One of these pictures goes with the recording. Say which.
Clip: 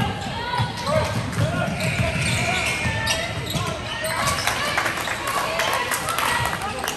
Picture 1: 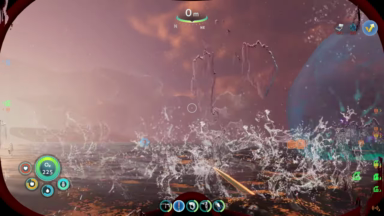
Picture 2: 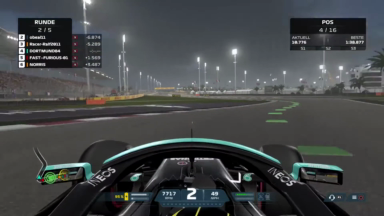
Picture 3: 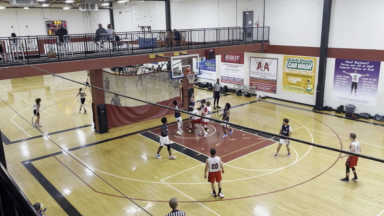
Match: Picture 3